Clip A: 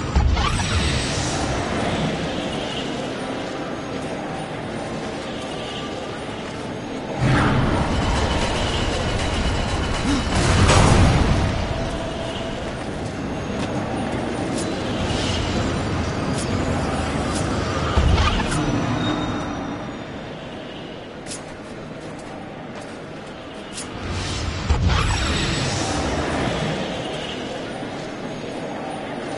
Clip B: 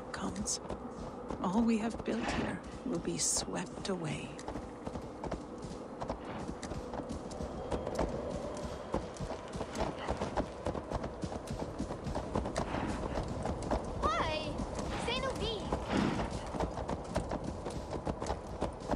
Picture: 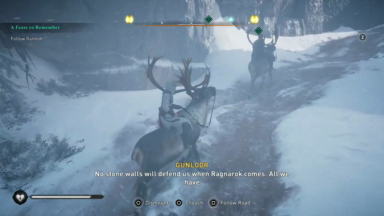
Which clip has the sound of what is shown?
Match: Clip B